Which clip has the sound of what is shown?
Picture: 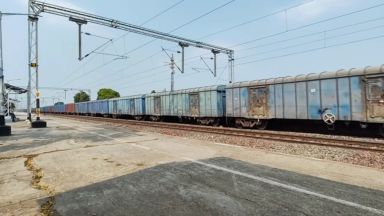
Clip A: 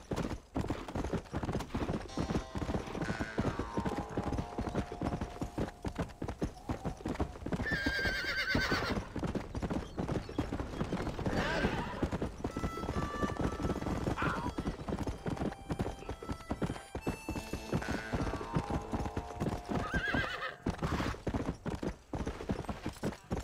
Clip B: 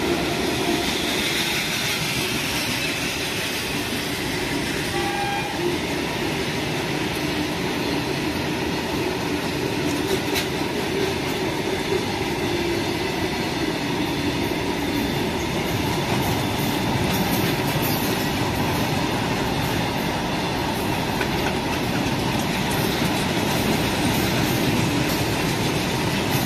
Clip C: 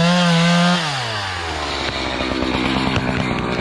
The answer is B